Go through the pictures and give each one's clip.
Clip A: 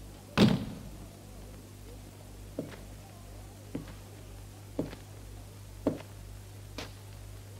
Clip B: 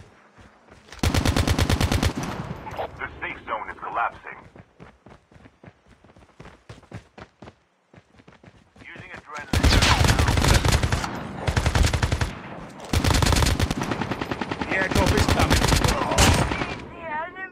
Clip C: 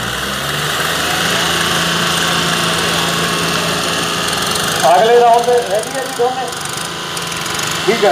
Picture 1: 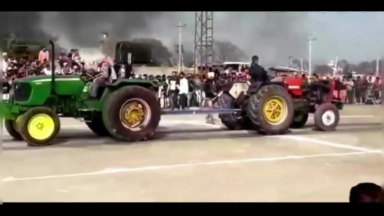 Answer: C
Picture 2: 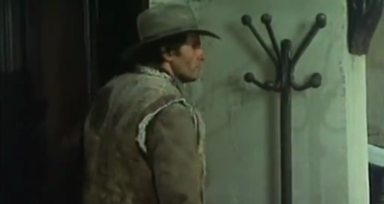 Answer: A